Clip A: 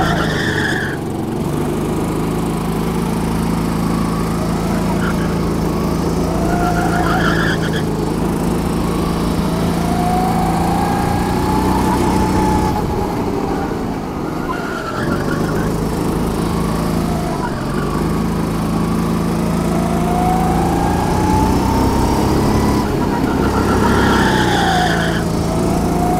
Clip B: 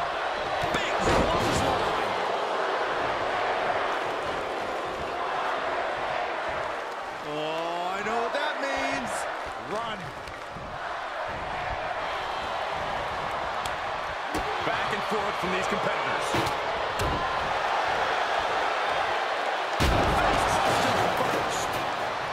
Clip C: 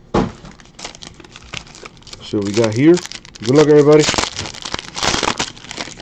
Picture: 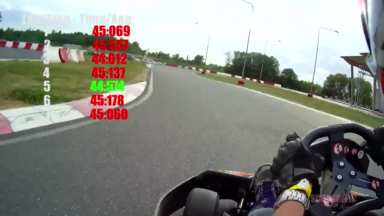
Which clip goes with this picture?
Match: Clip A